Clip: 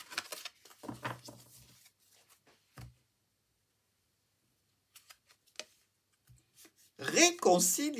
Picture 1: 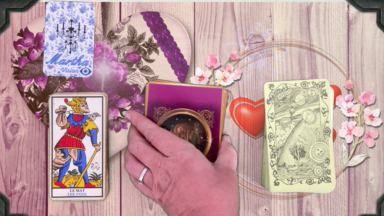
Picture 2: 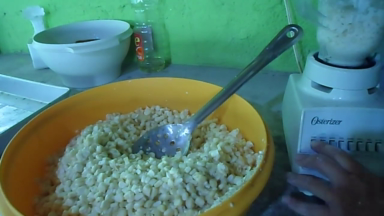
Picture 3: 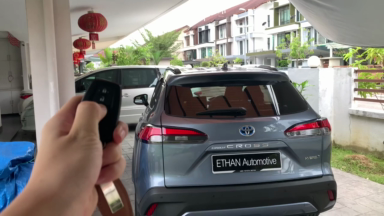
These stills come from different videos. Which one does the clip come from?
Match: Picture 1